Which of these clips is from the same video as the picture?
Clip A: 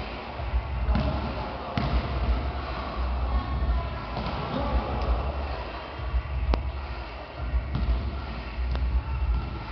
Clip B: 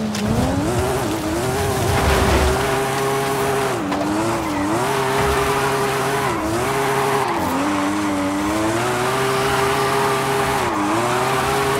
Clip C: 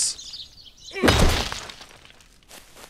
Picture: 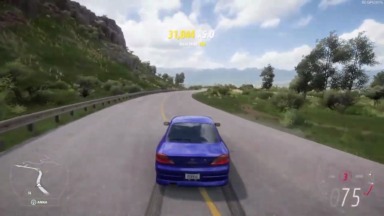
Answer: B